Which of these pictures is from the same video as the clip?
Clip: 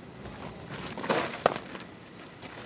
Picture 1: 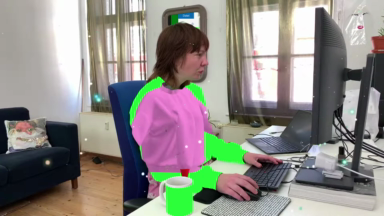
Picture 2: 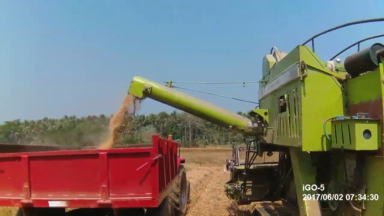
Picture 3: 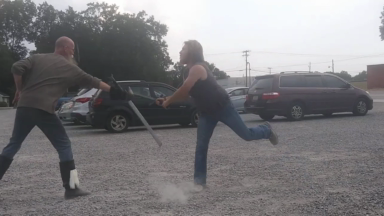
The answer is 3